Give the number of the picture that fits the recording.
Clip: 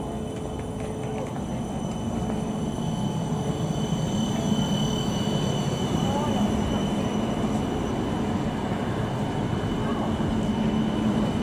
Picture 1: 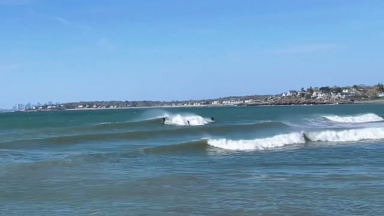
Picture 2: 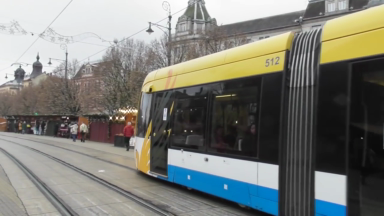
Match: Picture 2